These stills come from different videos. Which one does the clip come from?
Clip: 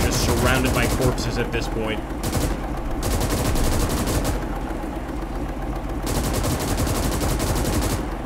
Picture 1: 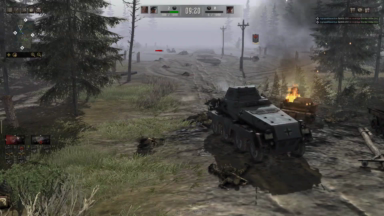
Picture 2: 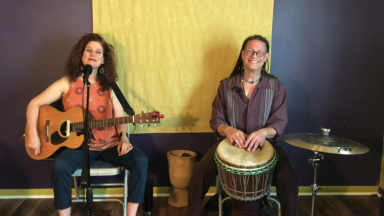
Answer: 1